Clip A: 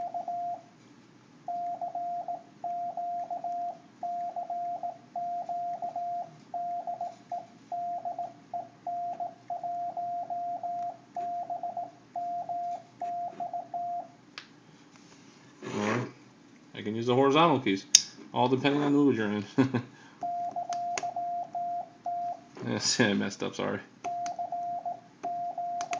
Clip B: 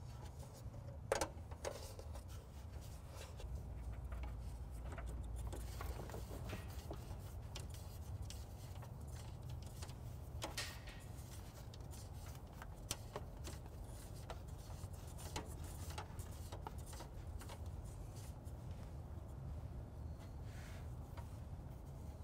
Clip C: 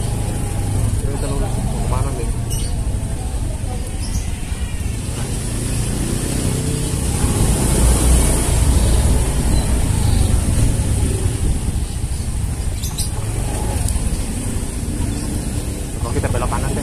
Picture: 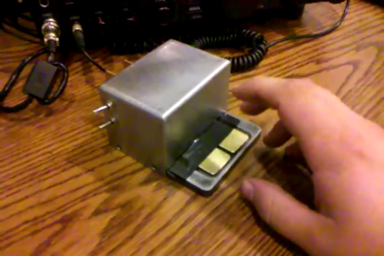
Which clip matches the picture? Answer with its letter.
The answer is A